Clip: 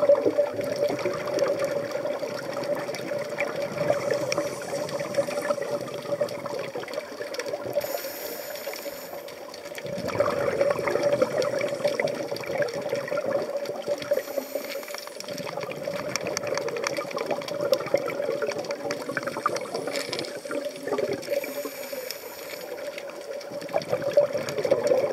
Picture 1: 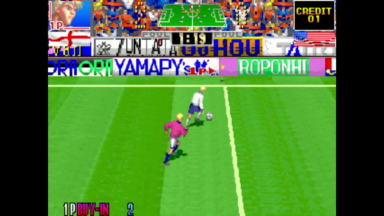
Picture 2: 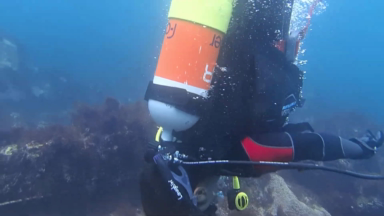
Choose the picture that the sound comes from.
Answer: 2